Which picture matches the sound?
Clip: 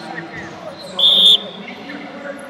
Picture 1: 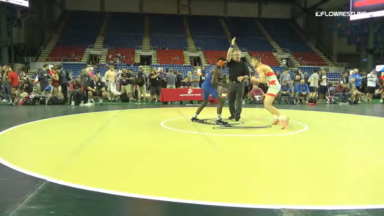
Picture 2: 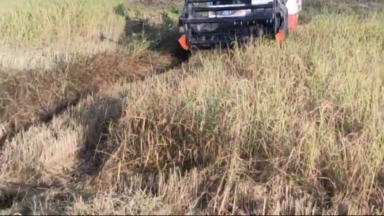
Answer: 1